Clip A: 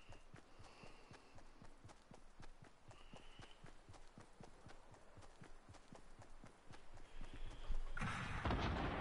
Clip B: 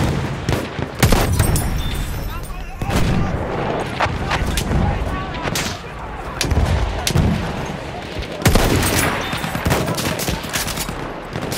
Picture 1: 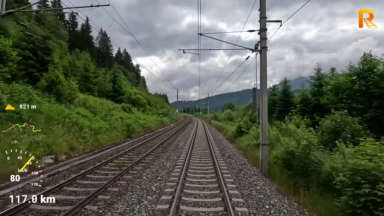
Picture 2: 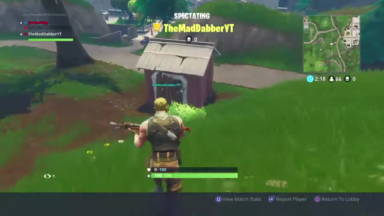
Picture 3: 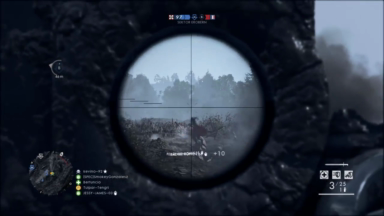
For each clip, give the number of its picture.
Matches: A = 2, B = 3